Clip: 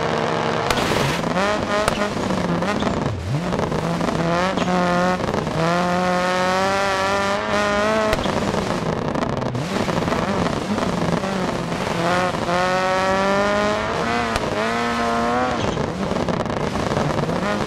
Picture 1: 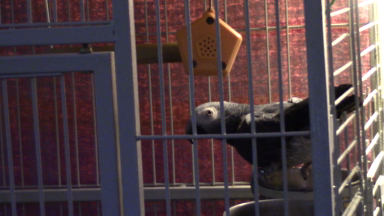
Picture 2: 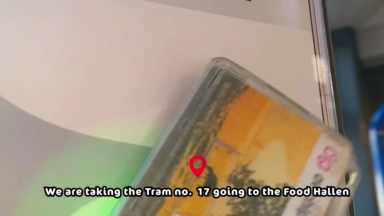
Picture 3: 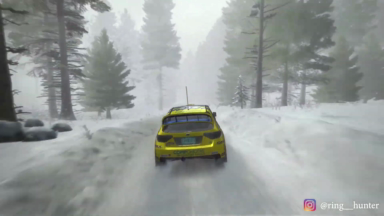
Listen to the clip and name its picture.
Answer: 3